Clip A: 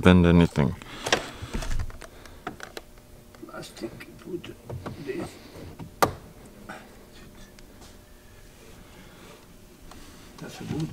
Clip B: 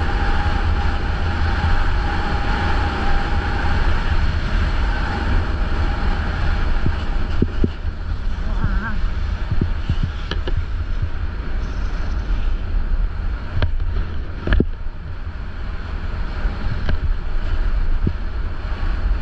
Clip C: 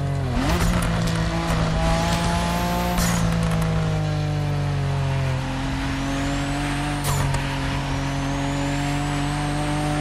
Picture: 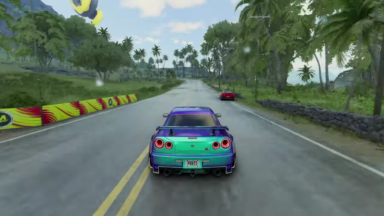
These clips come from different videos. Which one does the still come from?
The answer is C